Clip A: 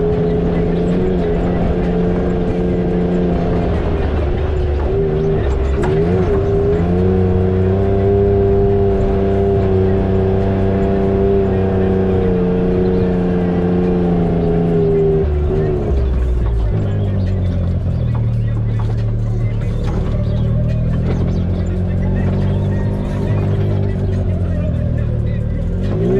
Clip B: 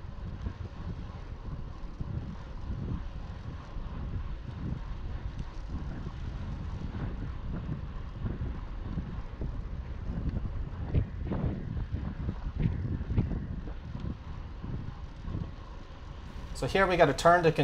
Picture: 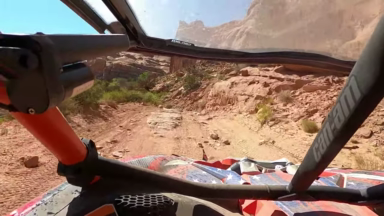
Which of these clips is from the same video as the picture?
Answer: A